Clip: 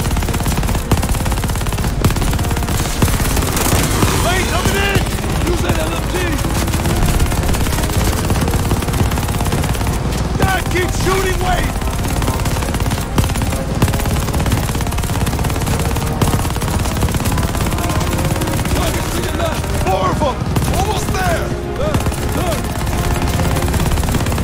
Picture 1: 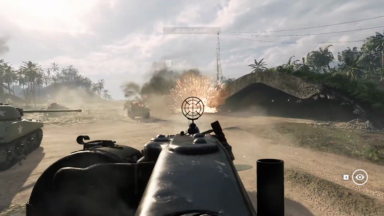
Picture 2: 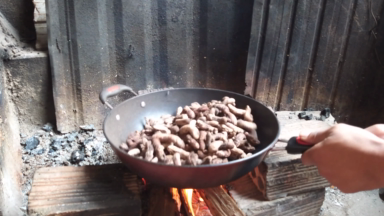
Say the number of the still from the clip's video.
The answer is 1